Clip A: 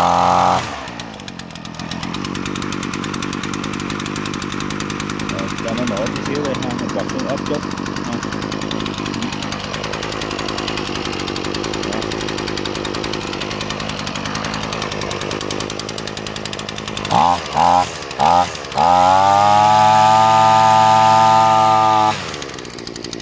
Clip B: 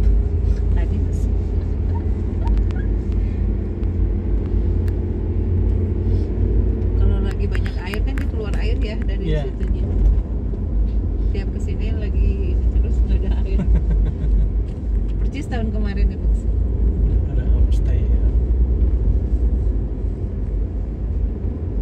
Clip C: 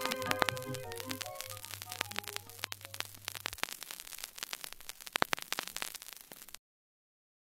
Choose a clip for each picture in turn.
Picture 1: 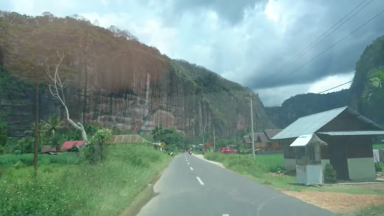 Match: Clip B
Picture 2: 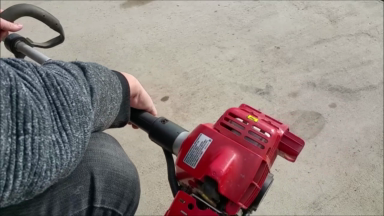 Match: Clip A